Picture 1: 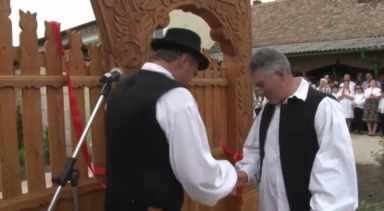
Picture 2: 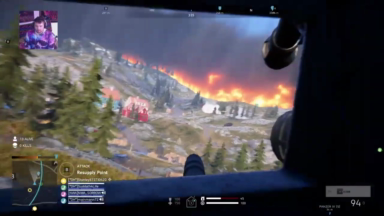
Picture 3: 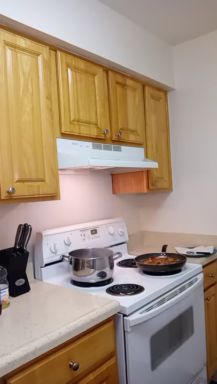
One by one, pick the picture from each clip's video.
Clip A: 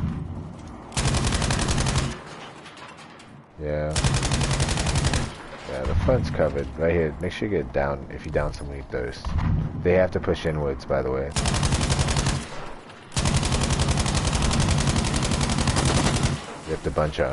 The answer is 2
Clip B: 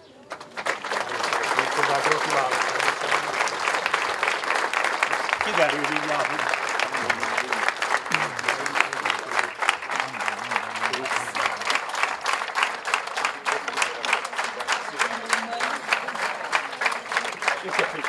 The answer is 1